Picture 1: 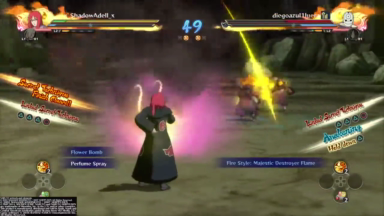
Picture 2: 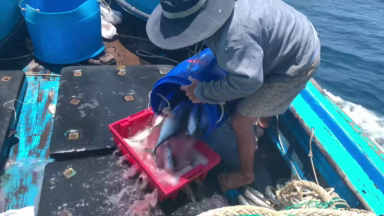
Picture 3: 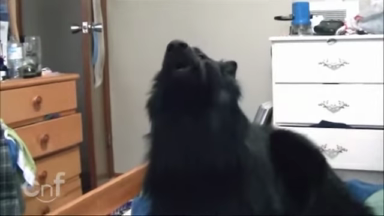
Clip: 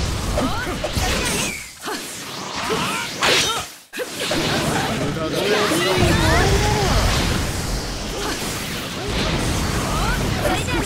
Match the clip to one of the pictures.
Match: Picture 1